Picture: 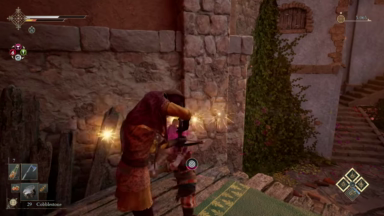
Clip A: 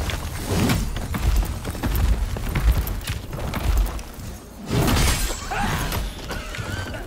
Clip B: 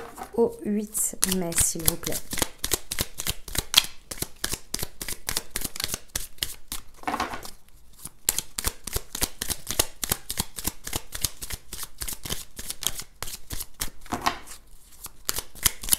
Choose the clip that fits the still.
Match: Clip A